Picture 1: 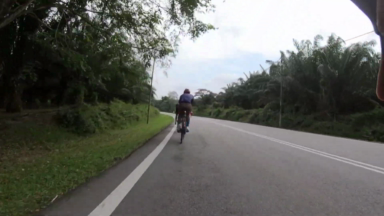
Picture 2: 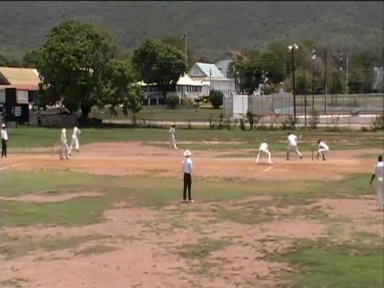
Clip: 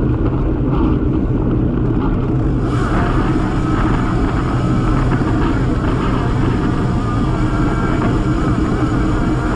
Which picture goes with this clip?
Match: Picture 1